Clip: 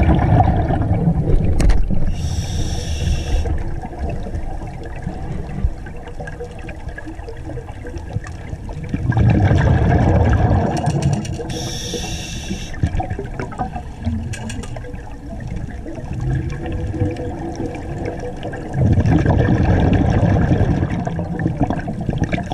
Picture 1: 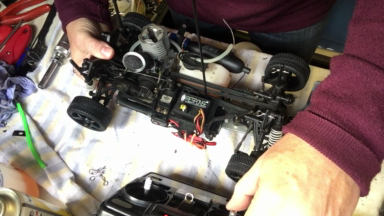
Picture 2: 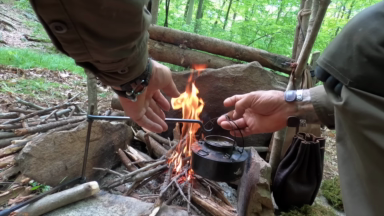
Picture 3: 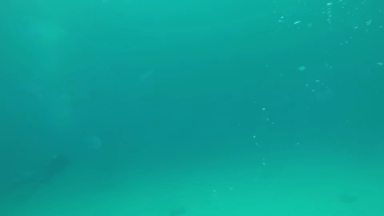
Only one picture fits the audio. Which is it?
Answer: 3